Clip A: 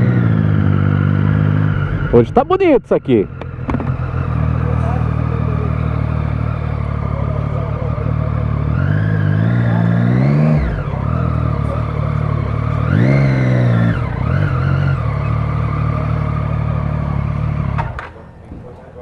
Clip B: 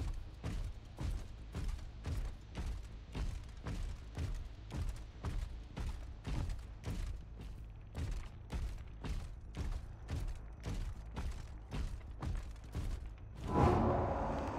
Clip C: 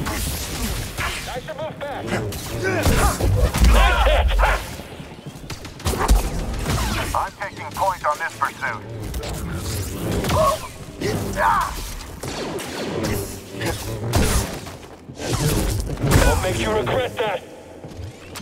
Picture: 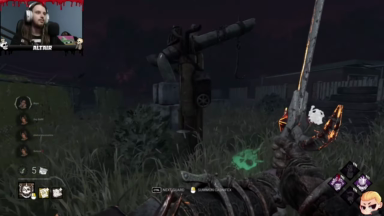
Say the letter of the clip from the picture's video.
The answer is B